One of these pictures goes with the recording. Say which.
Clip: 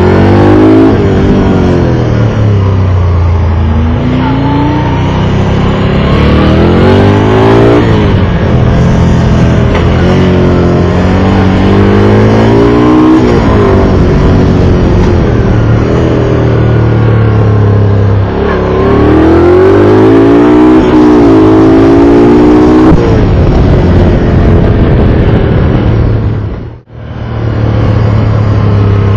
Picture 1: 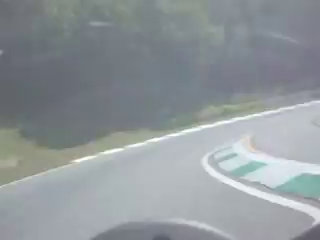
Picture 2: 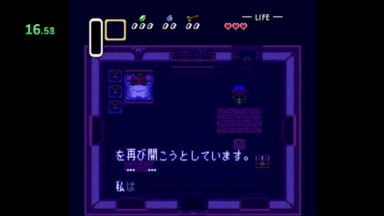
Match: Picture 1